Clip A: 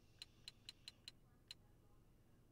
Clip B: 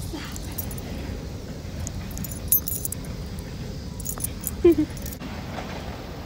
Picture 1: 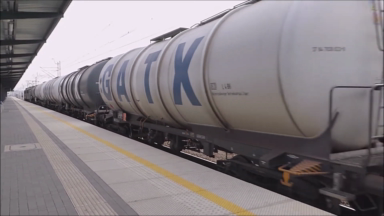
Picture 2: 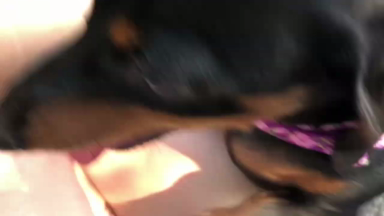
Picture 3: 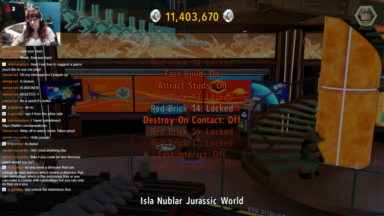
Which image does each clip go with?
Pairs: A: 3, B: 2